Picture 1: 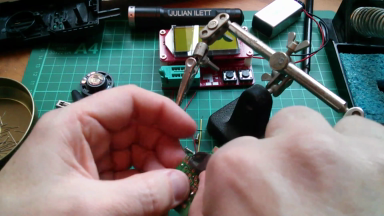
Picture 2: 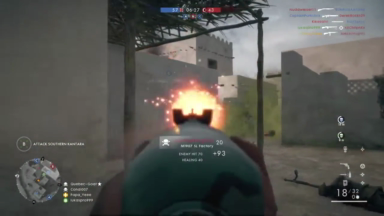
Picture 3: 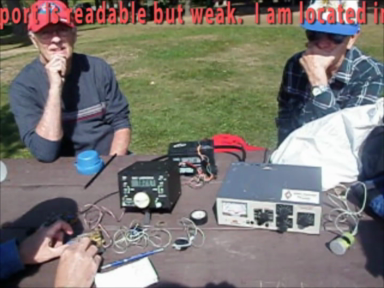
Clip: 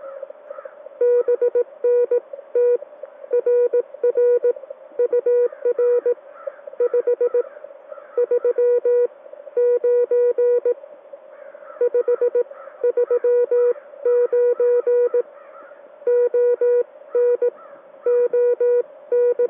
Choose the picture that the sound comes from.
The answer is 3